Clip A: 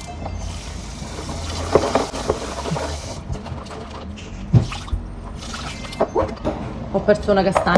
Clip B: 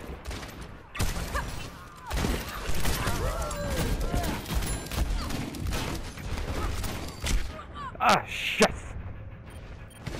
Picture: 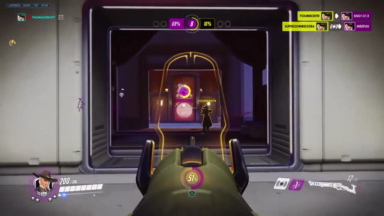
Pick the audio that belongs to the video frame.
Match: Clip B